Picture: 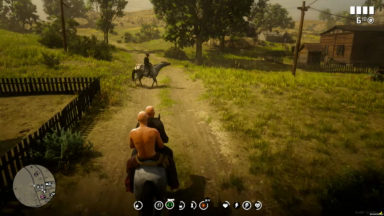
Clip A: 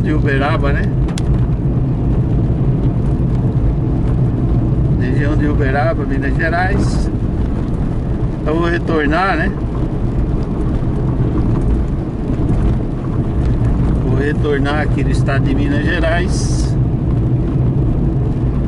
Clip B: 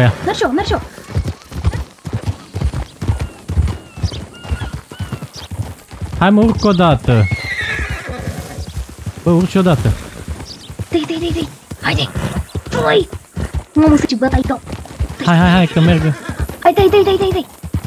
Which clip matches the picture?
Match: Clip B